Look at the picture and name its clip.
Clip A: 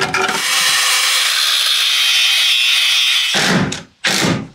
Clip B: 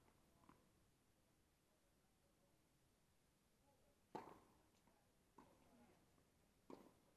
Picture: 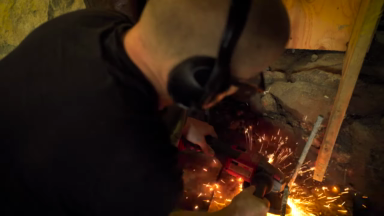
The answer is A